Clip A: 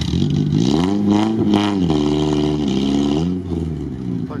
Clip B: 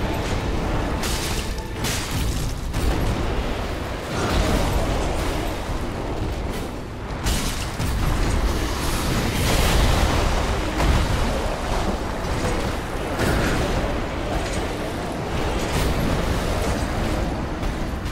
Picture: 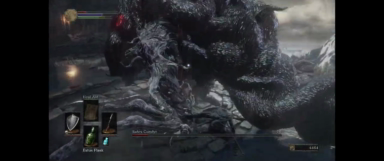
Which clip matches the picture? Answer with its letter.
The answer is B